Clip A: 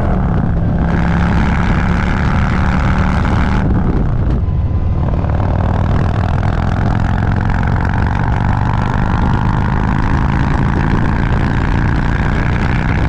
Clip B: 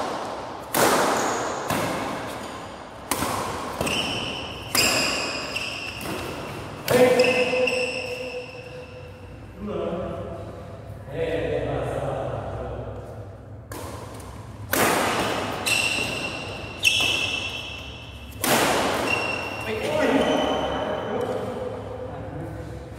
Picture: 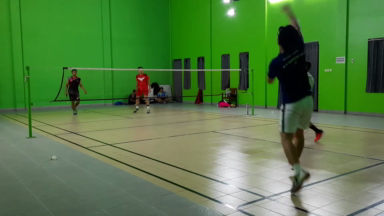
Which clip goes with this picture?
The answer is B